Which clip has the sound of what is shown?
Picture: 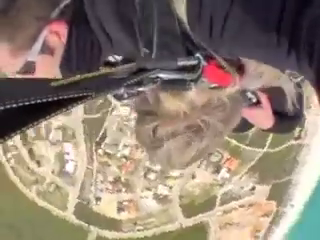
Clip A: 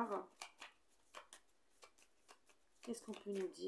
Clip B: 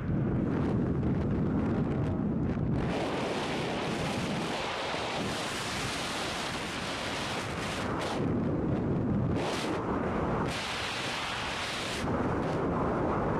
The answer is B